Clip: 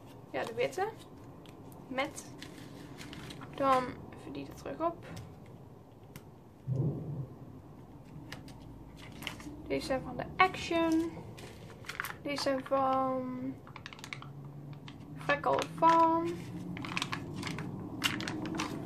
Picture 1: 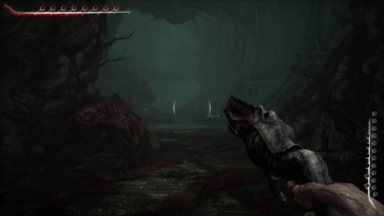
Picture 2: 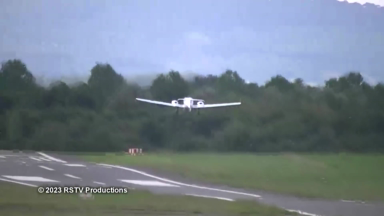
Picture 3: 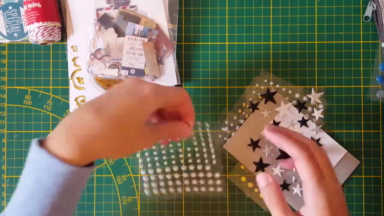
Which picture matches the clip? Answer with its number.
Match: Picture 3